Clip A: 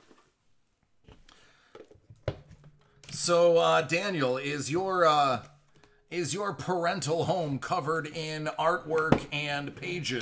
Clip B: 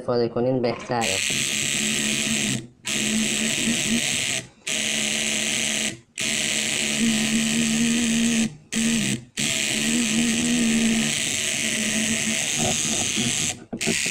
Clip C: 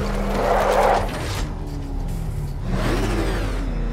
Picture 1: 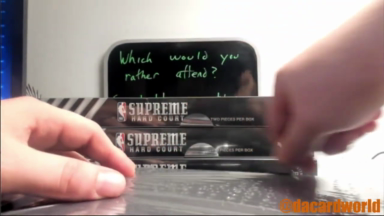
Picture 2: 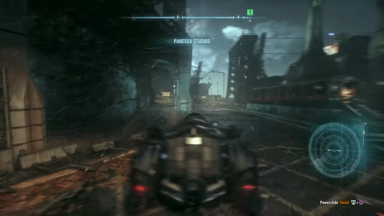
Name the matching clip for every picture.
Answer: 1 A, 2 C